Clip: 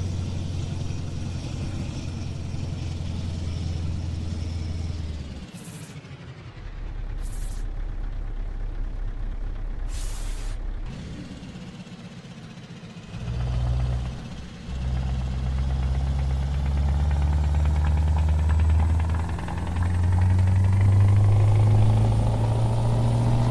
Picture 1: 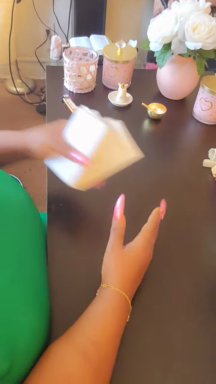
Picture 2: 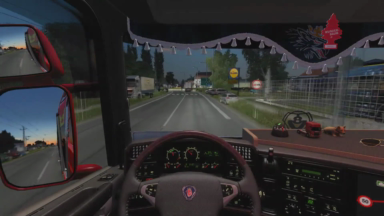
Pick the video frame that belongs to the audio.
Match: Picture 2